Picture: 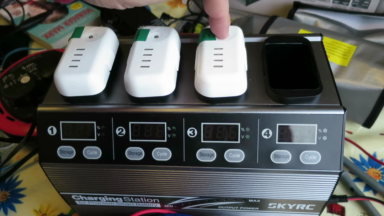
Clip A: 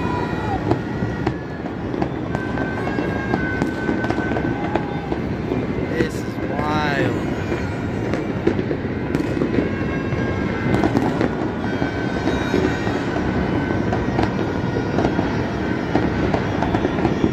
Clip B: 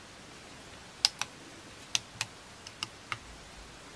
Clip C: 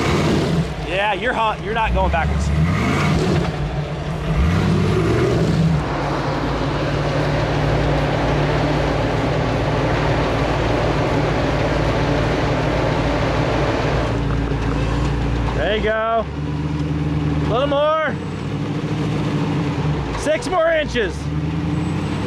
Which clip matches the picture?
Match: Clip B